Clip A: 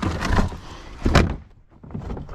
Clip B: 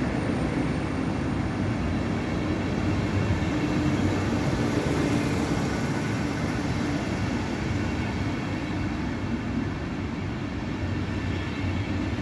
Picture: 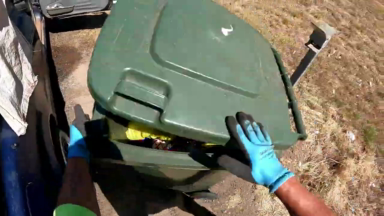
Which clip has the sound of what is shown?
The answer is A